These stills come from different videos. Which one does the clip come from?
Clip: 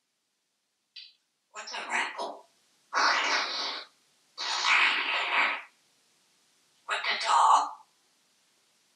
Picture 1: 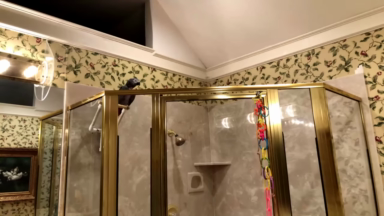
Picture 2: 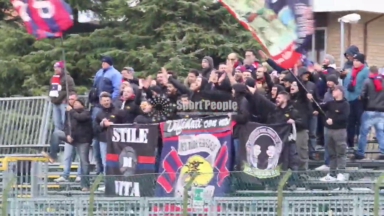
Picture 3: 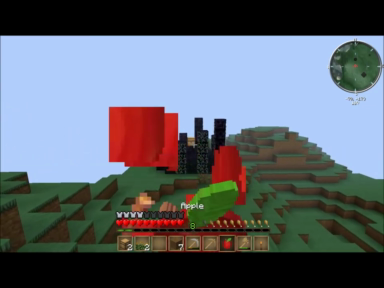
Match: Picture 1